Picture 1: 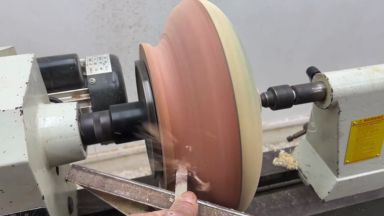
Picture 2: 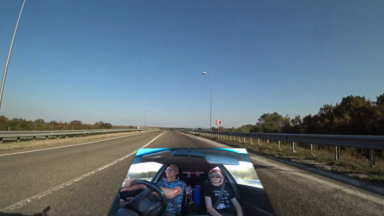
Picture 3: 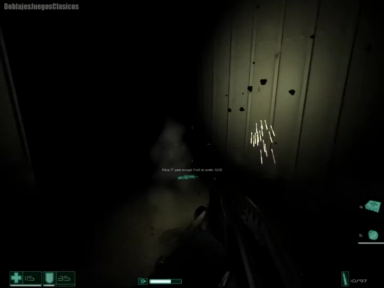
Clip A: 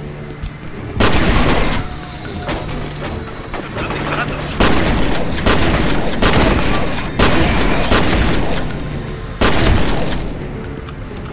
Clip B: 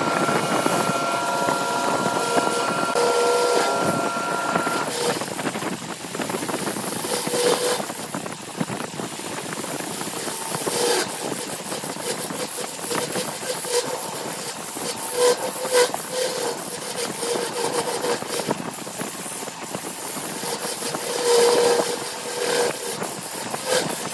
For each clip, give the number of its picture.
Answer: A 3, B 1